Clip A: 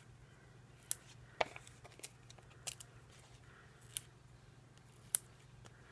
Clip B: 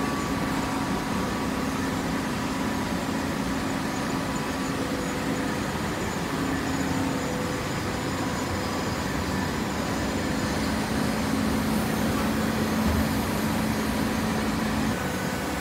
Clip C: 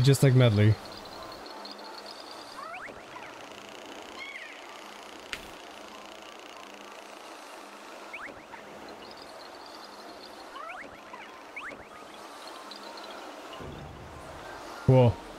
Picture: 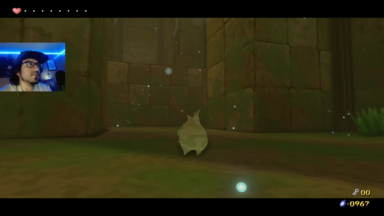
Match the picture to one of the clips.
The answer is C